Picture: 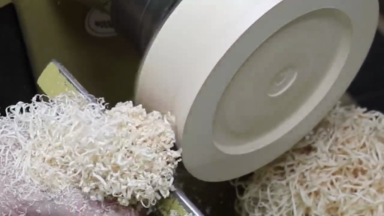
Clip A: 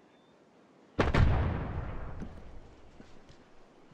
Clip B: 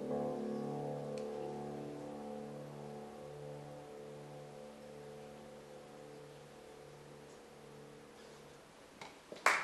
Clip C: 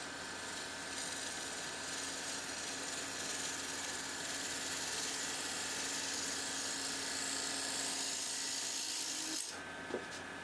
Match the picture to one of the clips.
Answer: C